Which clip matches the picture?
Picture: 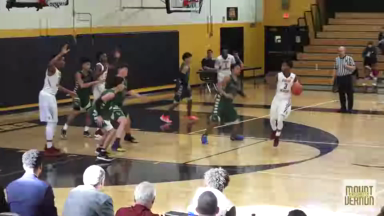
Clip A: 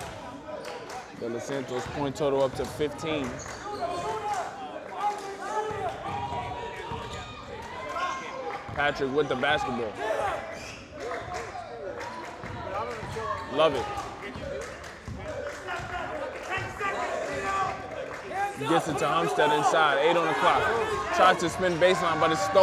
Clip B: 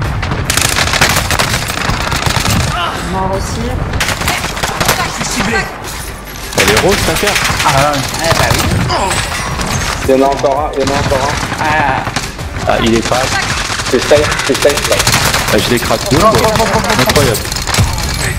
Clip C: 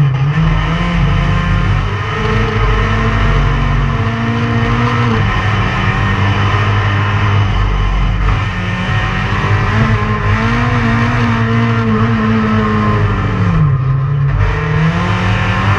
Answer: A